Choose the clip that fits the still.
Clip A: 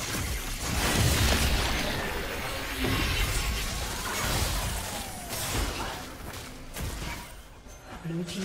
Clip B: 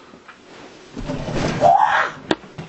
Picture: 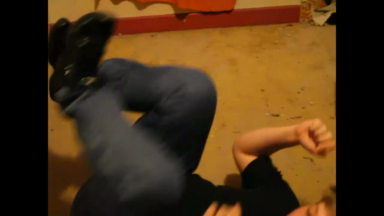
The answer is B